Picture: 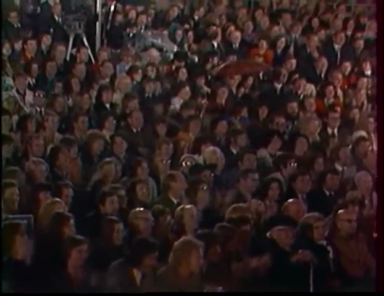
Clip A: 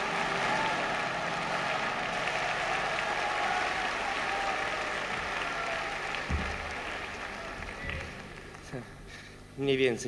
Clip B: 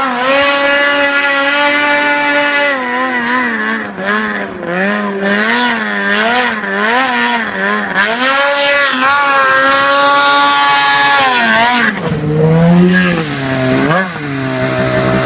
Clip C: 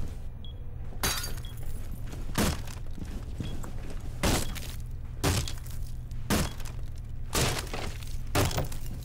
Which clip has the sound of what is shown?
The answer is A